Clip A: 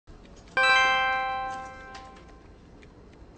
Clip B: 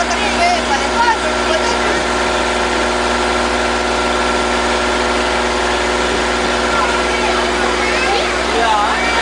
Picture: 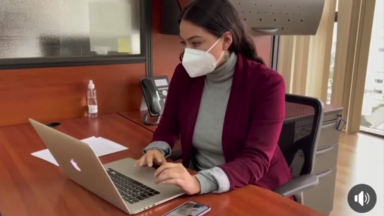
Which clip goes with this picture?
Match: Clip A